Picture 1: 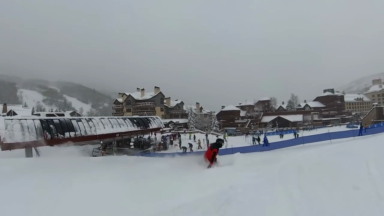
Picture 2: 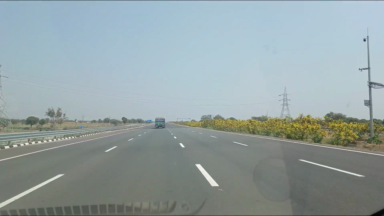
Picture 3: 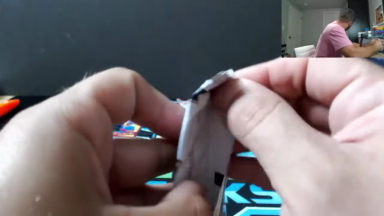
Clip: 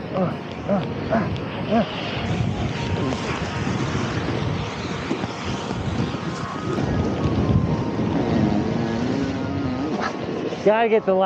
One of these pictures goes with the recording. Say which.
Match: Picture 1